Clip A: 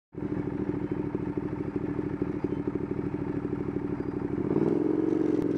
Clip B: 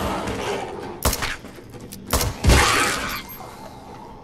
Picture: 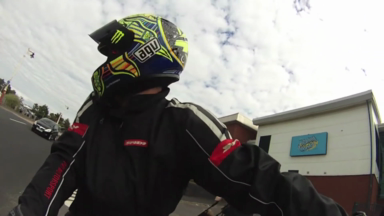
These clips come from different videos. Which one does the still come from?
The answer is A